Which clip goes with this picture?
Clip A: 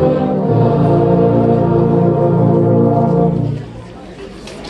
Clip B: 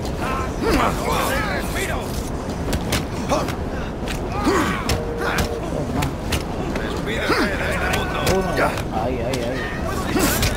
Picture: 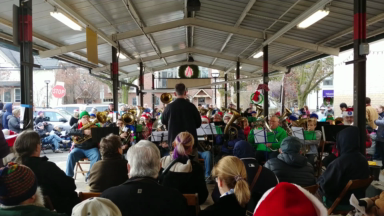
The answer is A